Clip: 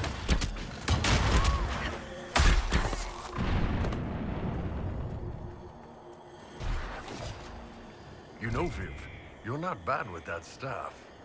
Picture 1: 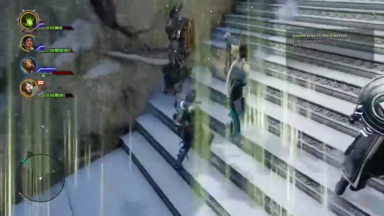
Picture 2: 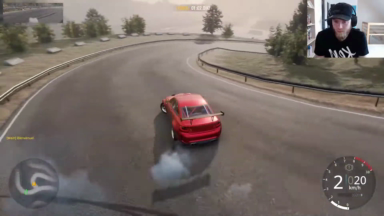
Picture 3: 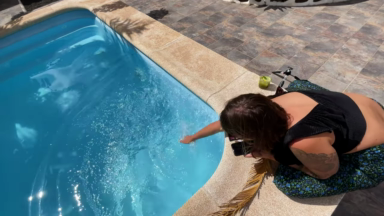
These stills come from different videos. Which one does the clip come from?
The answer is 1